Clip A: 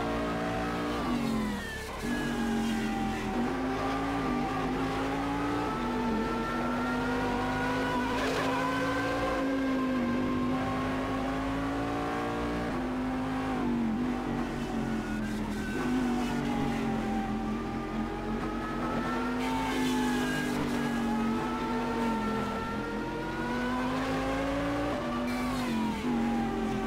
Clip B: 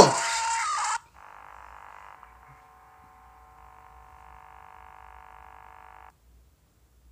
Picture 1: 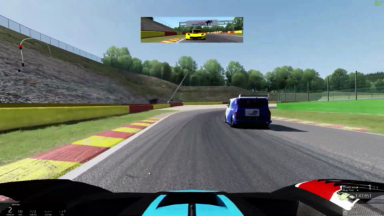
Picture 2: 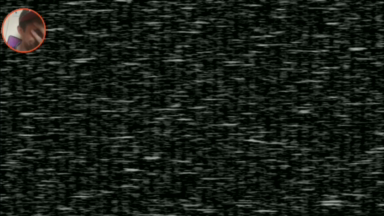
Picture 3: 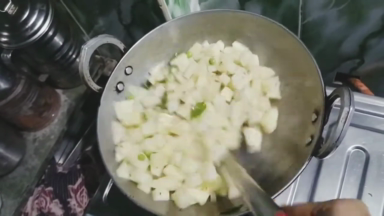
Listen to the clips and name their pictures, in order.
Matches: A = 1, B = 2